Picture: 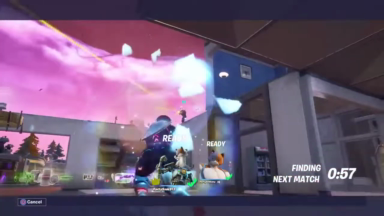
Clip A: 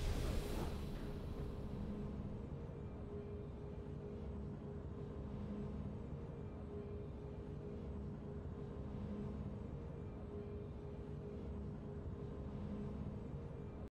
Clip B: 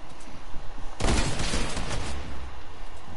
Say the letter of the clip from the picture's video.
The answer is B